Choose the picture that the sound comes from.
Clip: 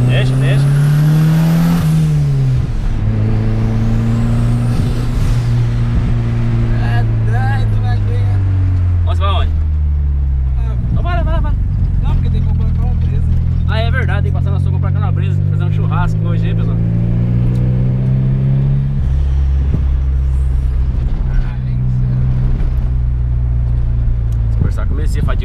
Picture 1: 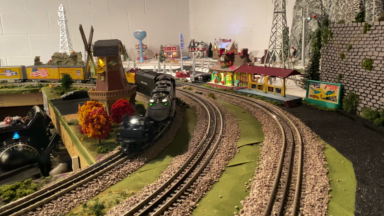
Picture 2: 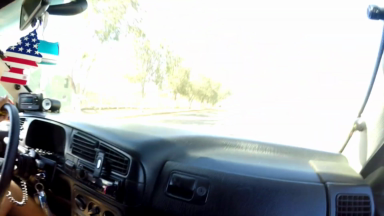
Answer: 2